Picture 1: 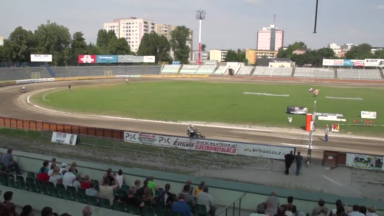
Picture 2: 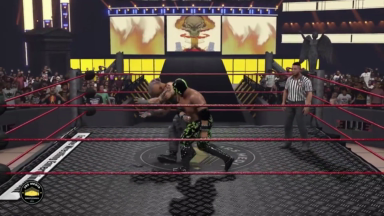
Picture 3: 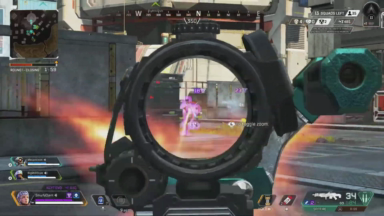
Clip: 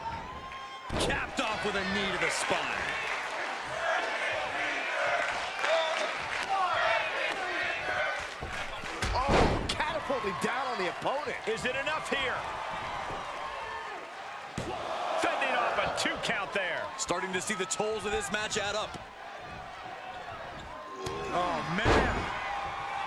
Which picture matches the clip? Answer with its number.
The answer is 2